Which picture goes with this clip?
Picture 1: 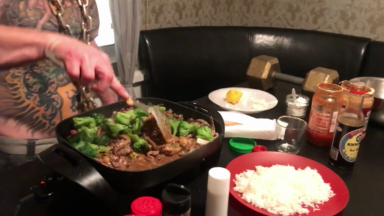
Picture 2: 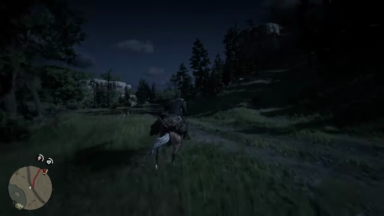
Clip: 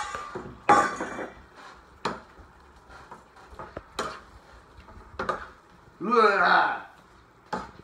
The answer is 1